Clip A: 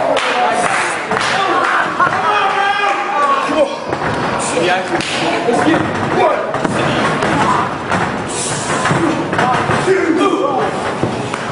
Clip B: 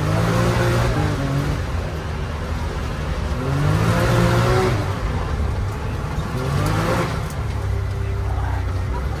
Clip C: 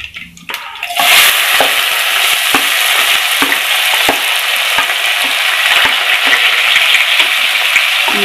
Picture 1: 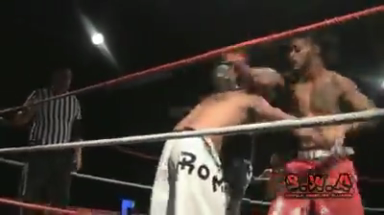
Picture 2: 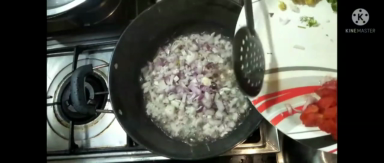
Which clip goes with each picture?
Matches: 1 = A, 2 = C